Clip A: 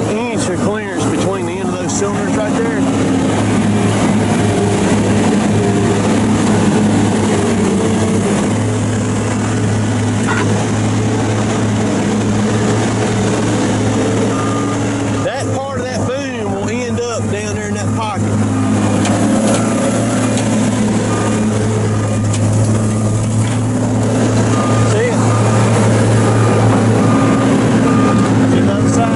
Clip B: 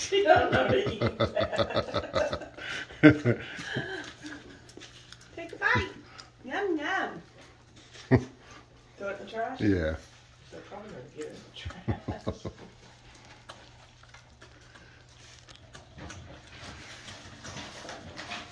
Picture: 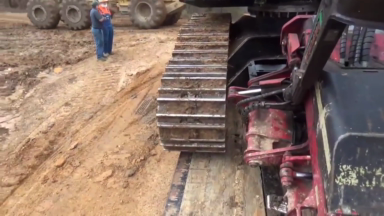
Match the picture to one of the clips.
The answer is A